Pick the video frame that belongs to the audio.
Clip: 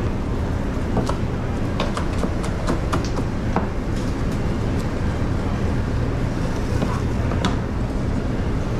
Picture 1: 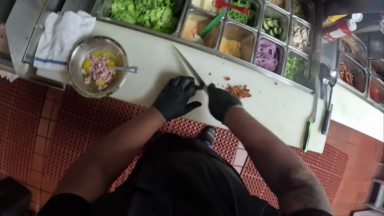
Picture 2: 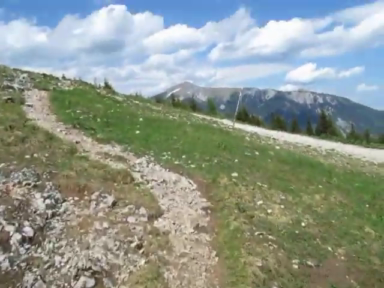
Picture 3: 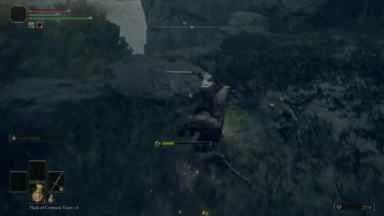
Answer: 1